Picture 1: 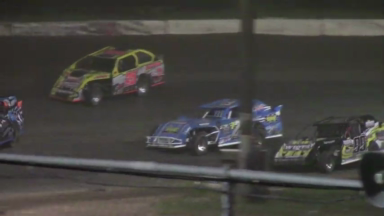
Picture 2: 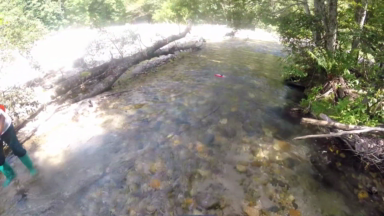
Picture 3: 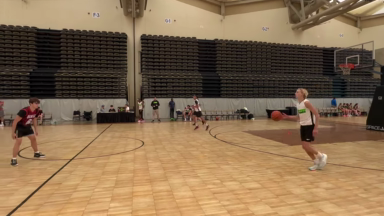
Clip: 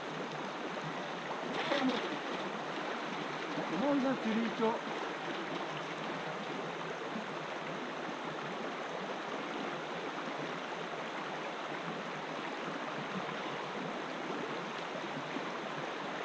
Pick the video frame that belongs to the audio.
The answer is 2